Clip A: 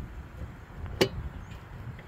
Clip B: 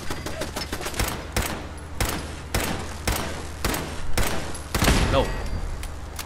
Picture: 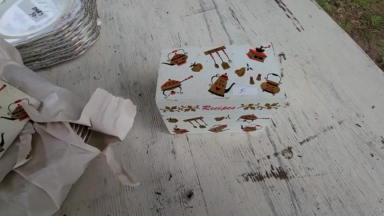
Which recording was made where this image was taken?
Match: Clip A